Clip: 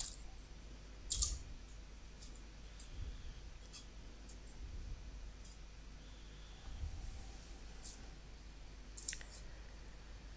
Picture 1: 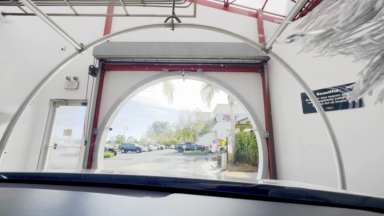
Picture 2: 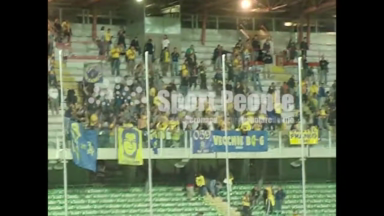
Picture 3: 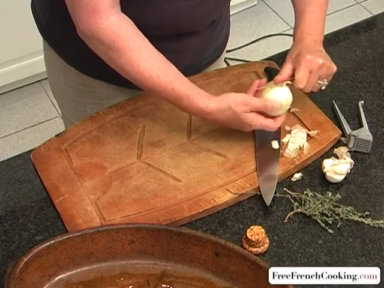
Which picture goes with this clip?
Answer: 3